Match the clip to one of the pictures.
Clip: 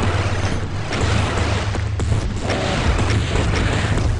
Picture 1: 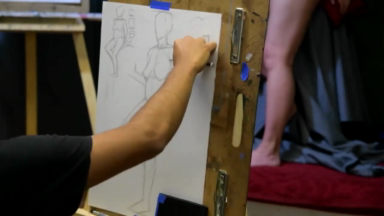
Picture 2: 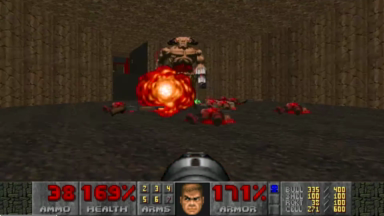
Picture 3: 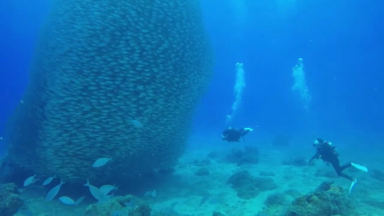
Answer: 2